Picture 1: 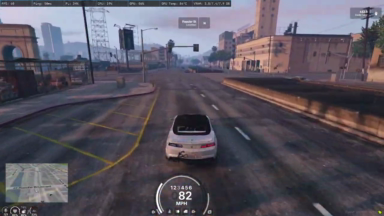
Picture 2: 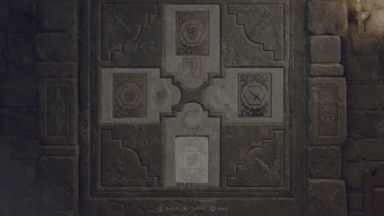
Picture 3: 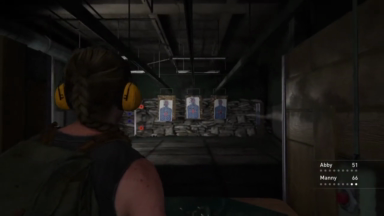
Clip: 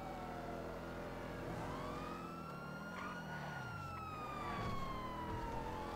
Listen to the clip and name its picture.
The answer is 1